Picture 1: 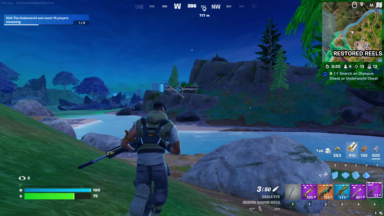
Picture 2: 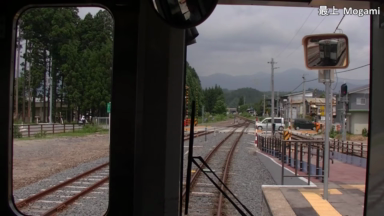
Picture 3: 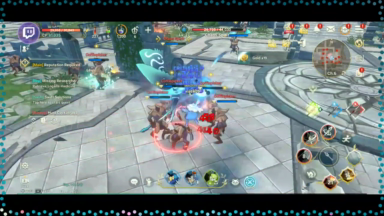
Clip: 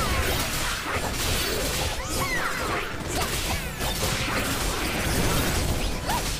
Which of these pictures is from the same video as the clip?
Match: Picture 3